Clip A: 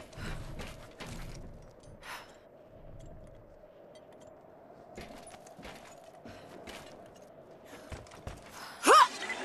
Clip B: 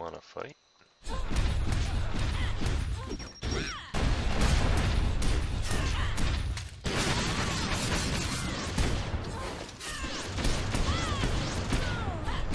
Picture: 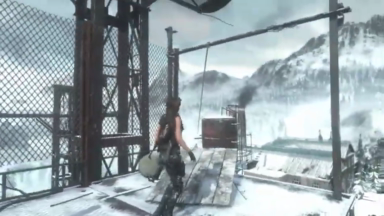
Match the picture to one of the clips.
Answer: A